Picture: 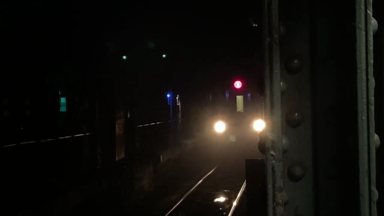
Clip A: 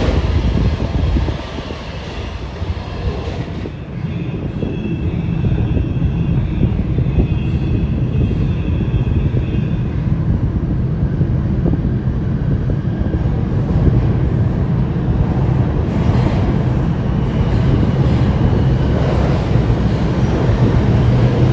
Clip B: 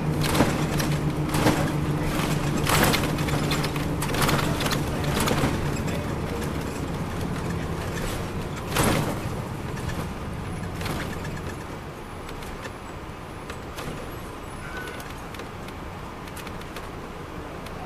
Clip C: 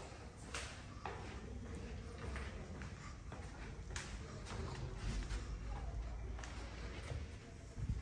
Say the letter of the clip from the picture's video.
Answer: A